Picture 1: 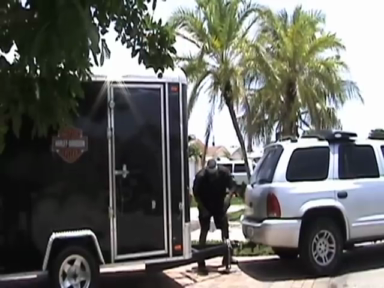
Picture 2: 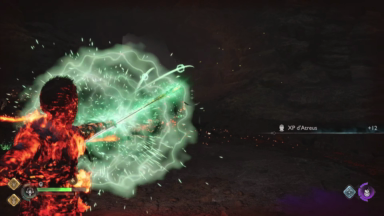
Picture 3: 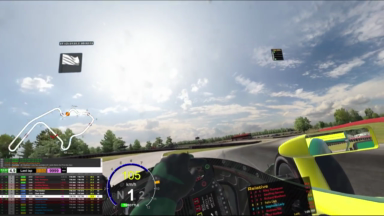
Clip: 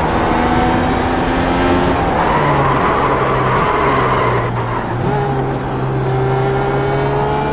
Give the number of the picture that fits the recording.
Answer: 3